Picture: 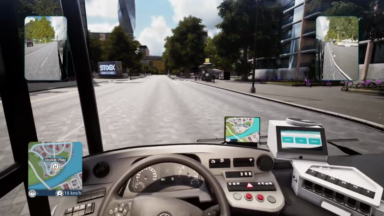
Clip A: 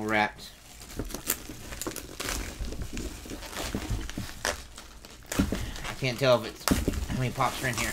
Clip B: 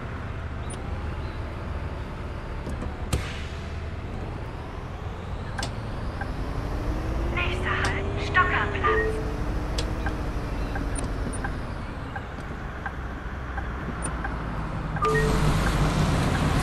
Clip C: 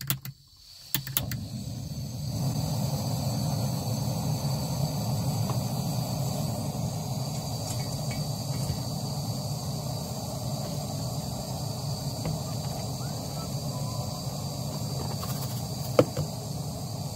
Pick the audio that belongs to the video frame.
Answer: B